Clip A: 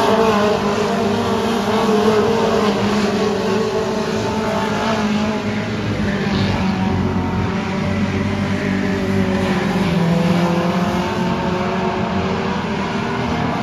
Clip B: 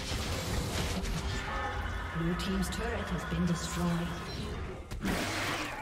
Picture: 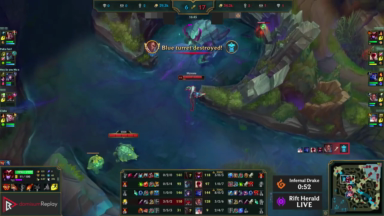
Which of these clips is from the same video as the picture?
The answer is B